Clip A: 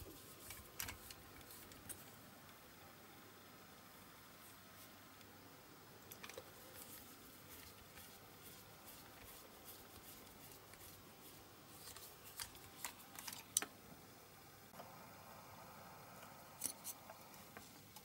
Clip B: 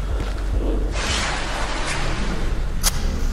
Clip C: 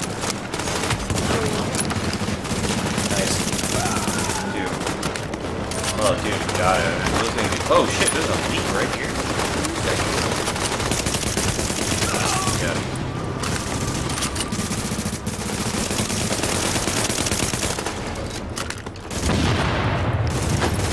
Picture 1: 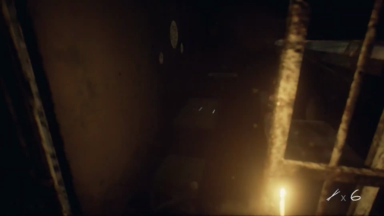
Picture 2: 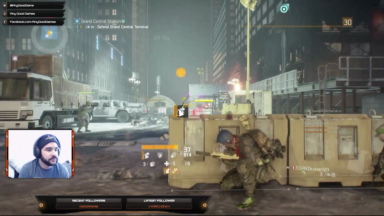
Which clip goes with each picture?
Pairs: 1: B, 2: C